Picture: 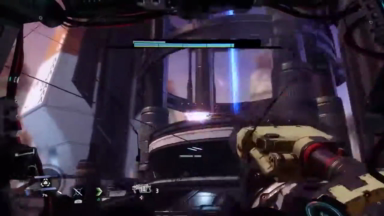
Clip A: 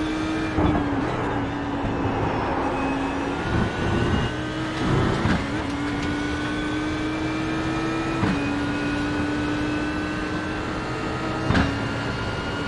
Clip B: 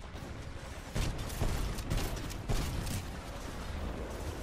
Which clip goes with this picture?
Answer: B